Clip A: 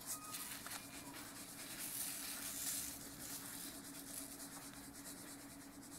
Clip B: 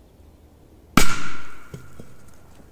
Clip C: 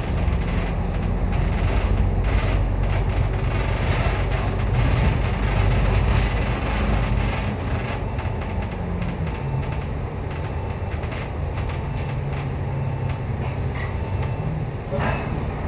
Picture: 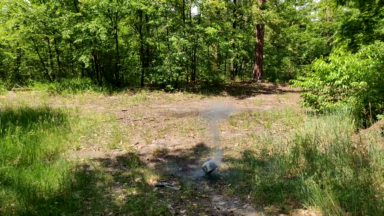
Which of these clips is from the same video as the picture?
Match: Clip B